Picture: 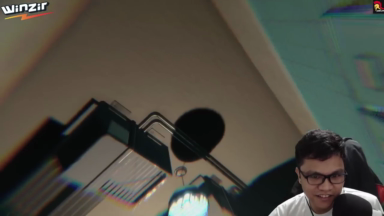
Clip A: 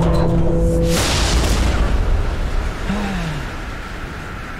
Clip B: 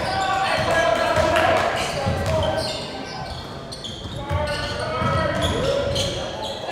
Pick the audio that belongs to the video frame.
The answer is A